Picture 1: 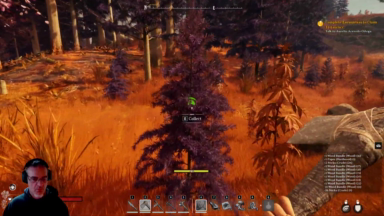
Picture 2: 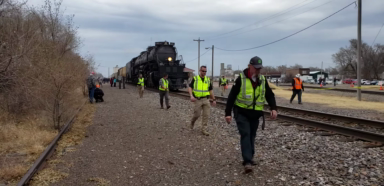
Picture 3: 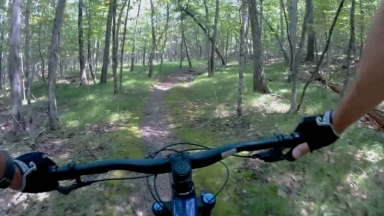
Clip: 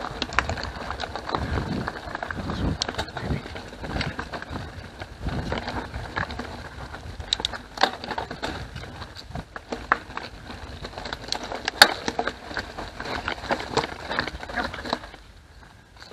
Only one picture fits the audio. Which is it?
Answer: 3